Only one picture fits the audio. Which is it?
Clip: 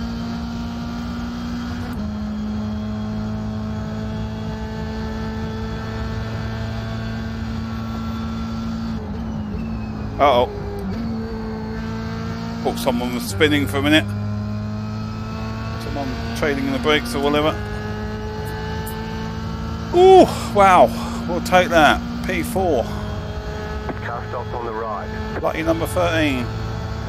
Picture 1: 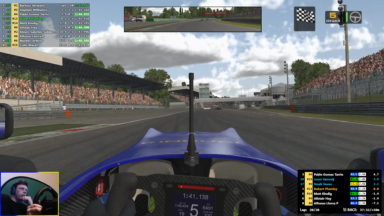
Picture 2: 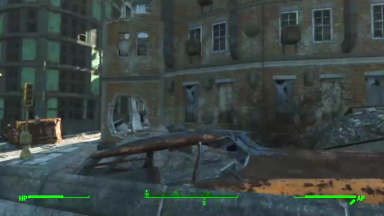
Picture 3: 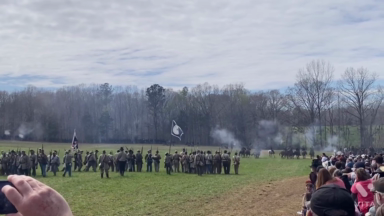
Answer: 1